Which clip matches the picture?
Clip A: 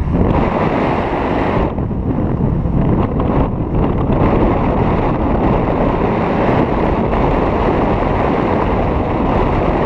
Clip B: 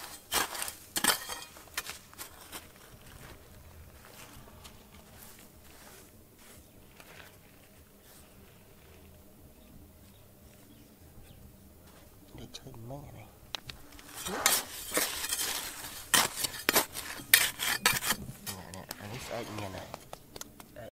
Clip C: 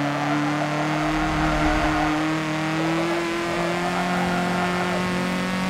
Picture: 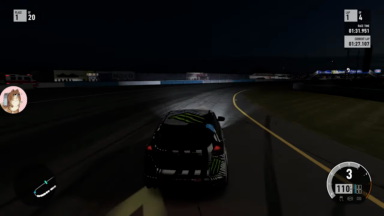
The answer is C